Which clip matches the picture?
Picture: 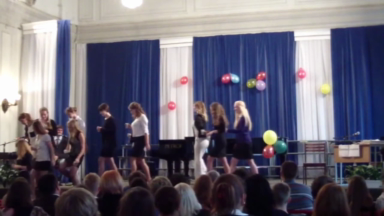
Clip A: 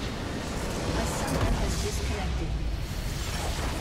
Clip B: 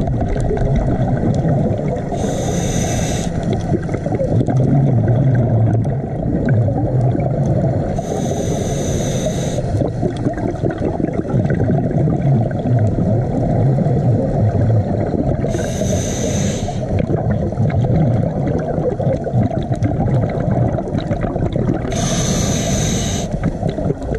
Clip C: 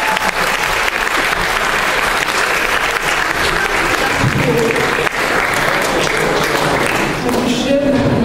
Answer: C